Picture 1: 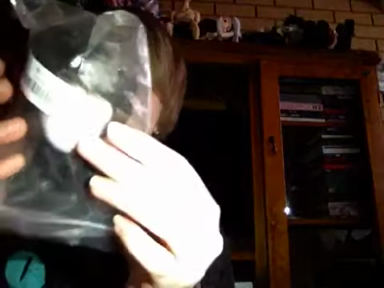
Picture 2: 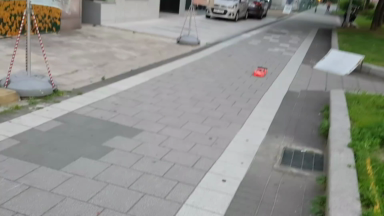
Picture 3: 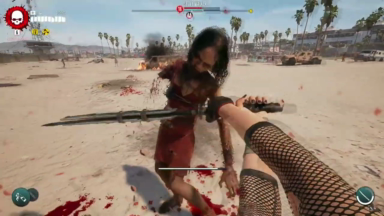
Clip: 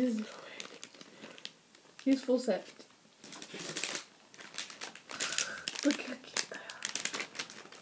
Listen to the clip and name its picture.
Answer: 1